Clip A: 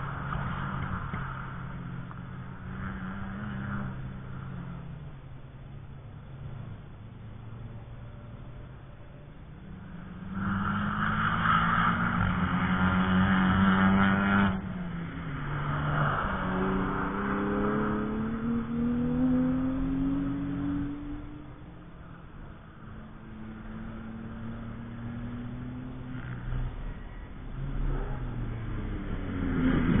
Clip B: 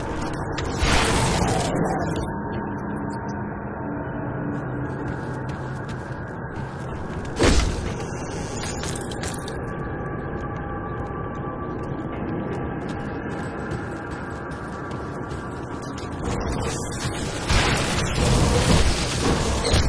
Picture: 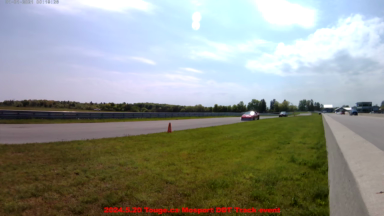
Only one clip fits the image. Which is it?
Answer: A